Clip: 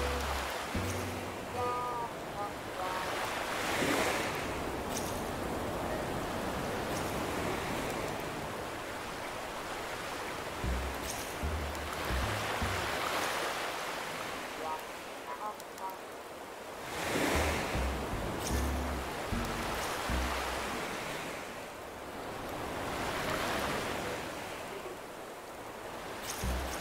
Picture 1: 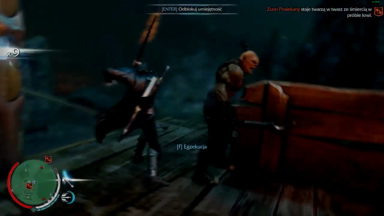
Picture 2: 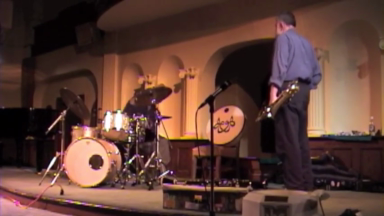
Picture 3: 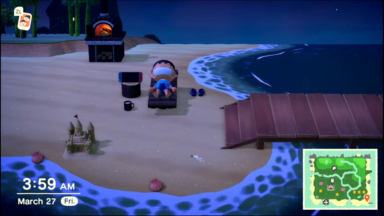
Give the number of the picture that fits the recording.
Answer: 3